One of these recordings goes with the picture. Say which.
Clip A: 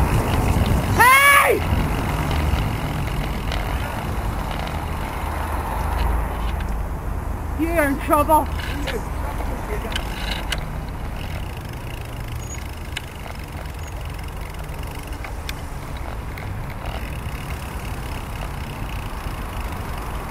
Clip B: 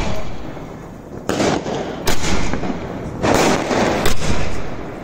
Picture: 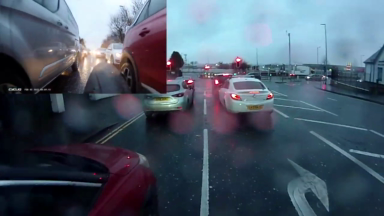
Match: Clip A